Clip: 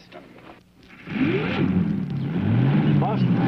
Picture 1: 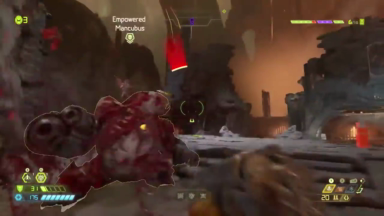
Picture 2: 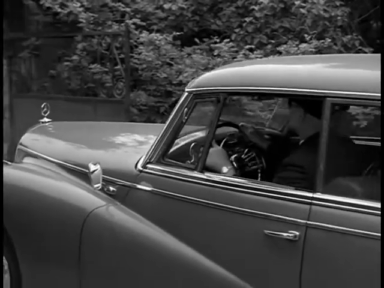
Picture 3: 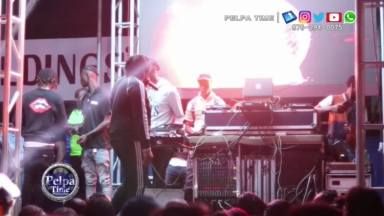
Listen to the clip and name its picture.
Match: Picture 2